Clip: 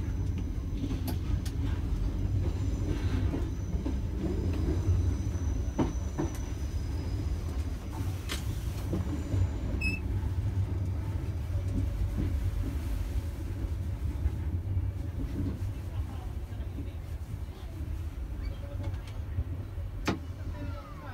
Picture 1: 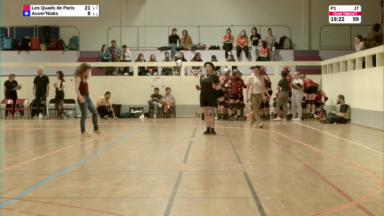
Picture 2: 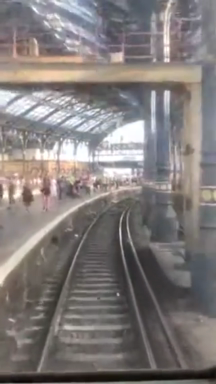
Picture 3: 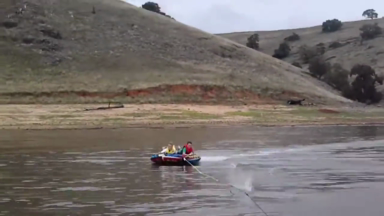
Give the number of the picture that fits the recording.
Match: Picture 2